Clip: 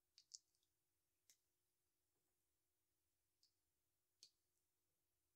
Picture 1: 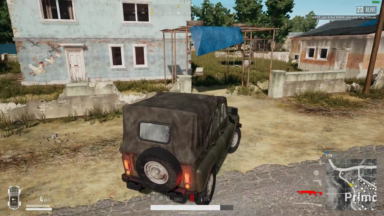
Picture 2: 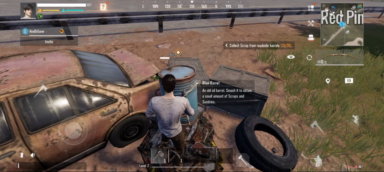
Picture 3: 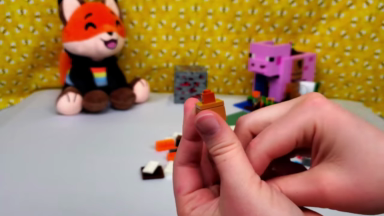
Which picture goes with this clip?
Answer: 3